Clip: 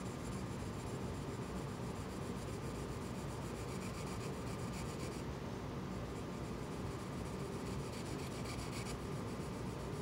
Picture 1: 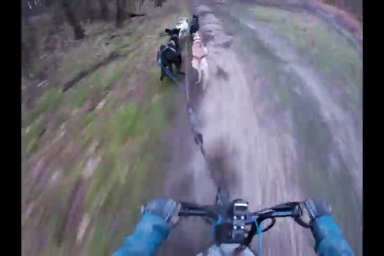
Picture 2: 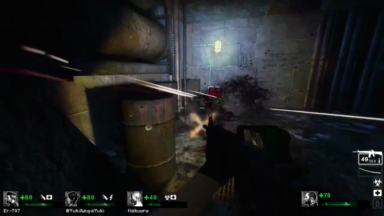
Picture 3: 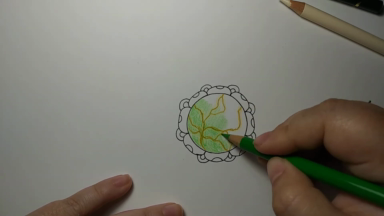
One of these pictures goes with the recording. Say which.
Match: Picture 3